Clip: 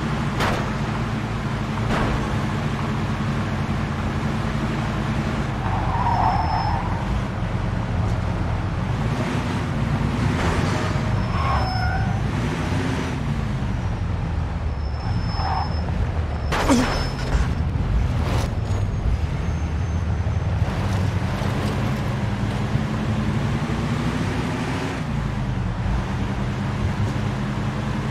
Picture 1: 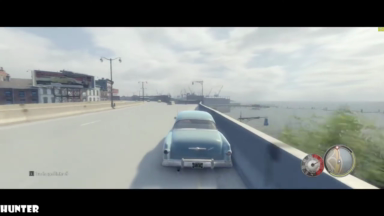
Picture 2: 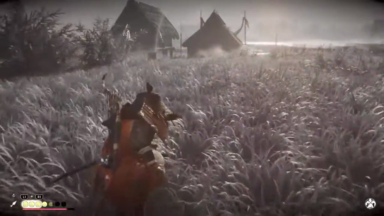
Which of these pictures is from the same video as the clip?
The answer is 1